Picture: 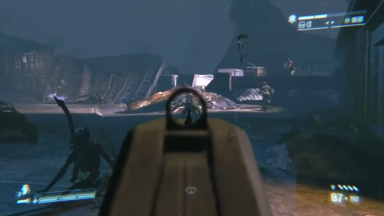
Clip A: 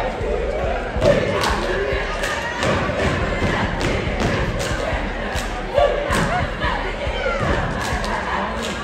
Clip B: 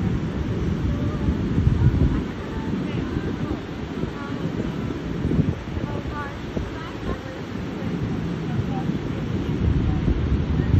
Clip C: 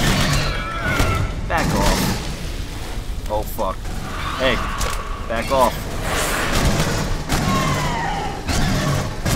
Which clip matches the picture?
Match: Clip C